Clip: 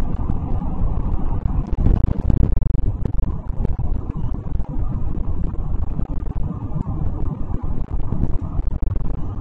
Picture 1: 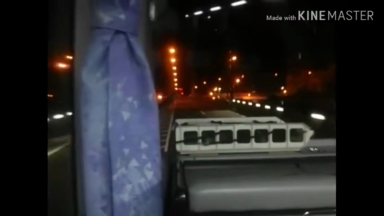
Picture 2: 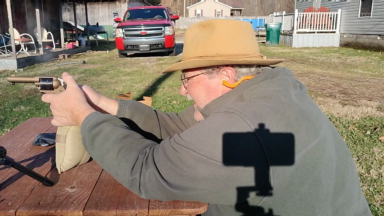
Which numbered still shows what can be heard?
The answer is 1